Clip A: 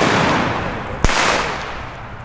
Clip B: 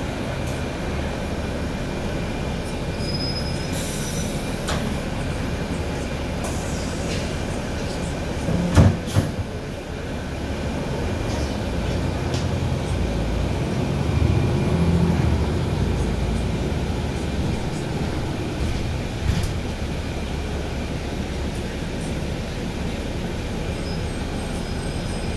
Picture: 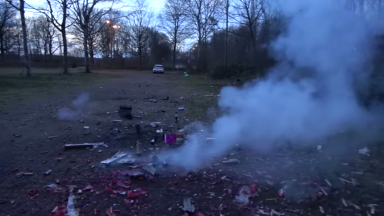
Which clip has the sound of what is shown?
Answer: A